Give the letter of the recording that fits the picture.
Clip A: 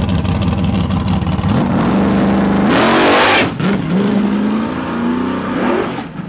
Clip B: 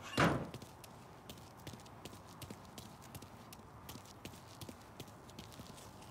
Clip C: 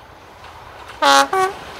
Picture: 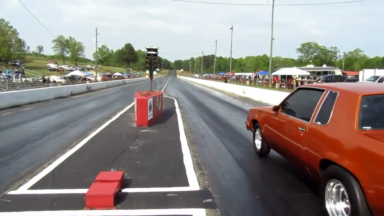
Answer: A